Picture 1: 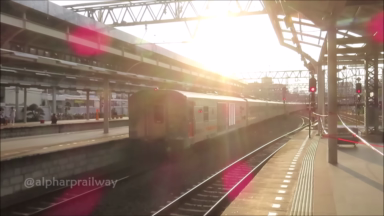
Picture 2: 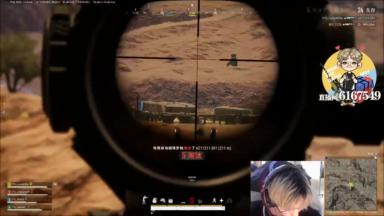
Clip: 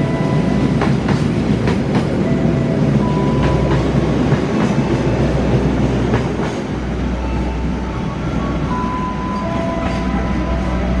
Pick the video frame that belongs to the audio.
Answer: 1